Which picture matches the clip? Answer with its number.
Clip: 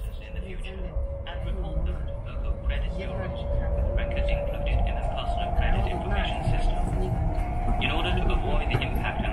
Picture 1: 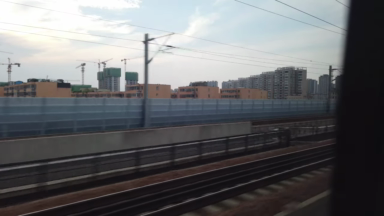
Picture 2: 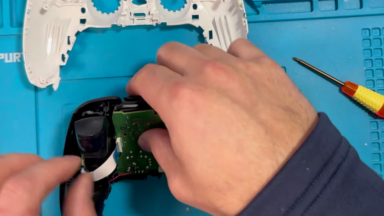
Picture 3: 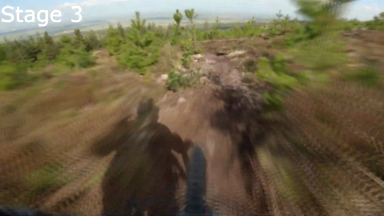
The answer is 1